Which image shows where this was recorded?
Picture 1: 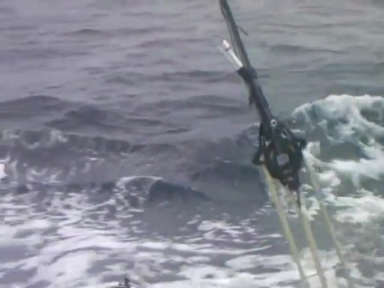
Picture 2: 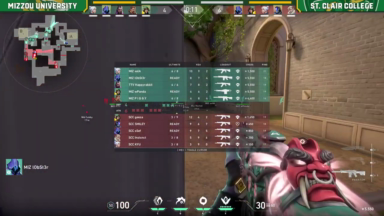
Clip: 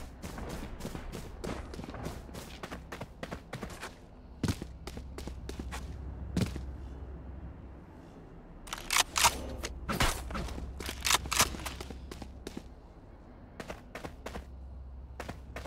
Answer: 2